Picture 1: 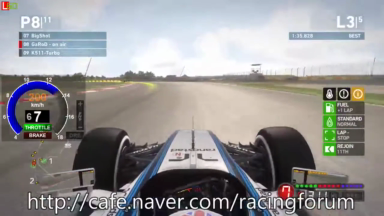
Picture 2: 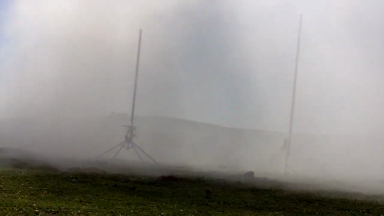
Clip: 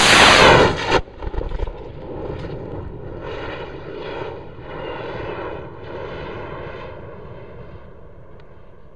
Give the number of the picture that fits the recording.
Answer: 2